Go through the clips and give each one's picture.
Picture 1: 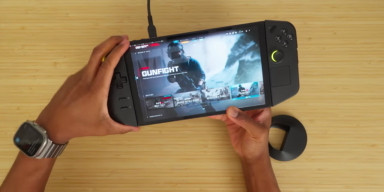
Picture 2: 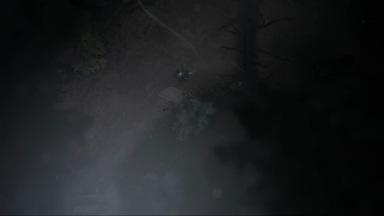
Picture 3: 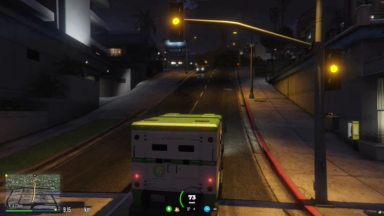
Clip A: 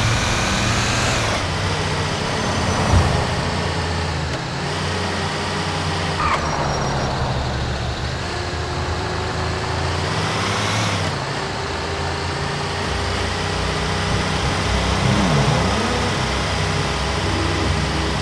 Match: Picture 3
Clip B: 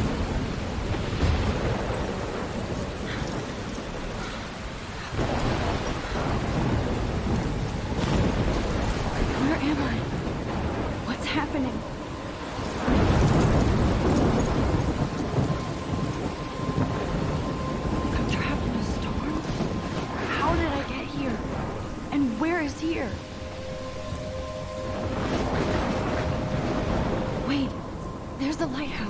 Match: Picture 2